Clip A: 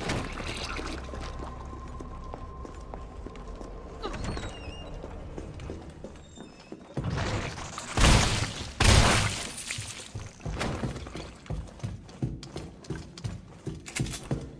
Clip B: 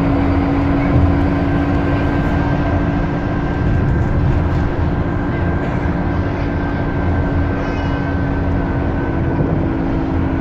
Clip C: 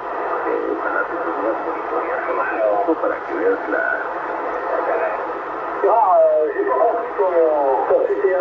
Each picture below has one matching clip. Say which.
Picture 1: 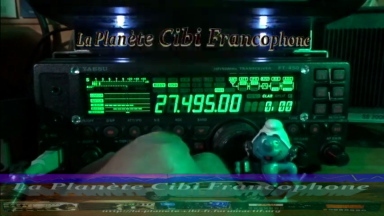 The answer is C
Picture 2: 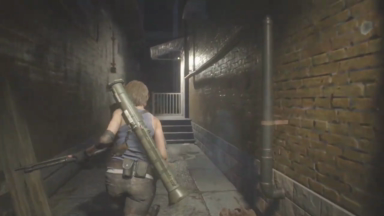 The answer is A